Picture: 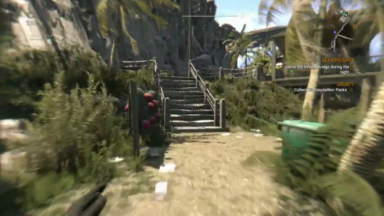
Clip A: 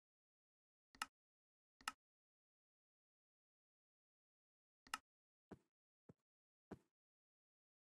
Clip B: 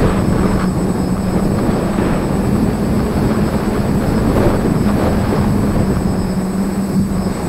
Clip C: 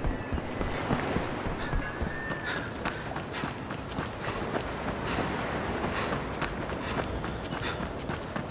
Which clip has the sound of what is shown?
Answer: C